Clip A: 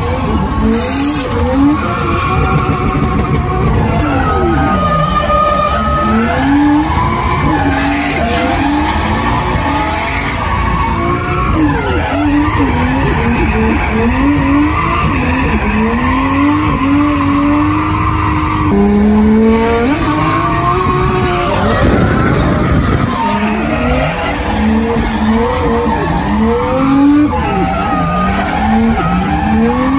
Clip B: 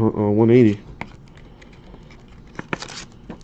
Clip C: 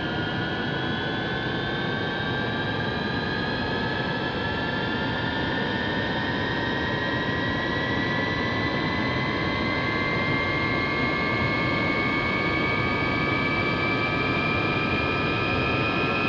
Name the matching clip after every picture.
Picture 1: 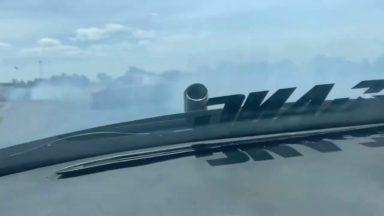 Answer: A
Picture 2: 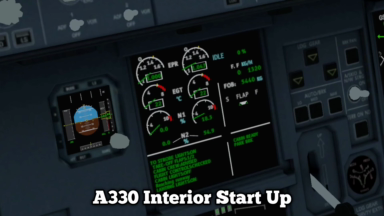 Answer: C